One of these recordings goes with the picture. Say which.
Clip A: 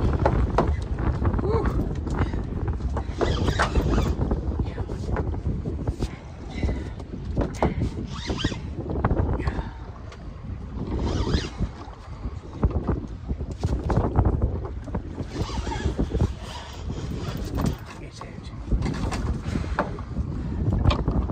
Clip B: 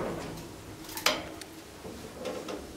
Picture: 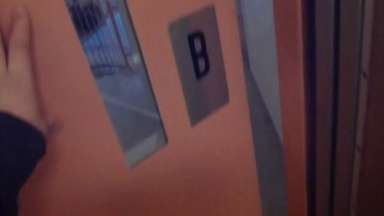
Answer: B